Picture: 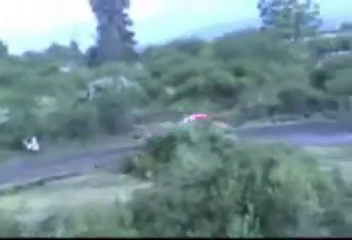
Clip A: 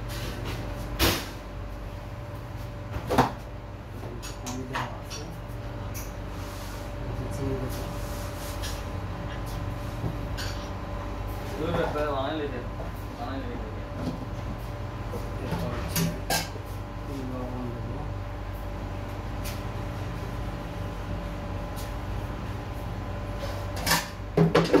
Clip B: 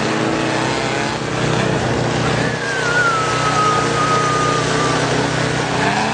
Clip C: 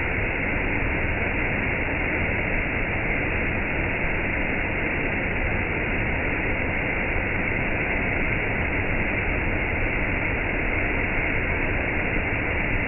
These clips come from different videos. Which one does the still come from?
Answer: B